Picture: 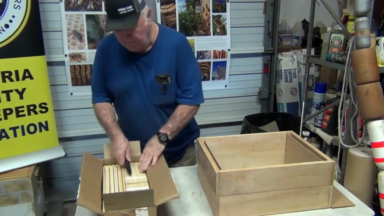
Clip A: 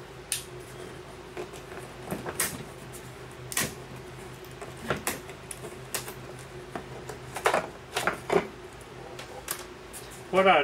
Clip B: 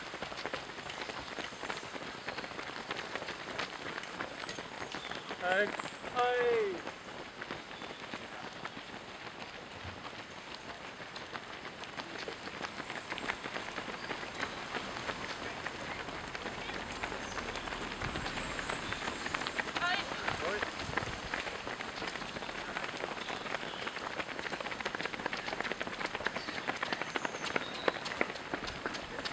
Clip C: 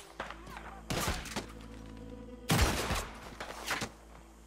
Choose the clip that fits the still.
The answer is A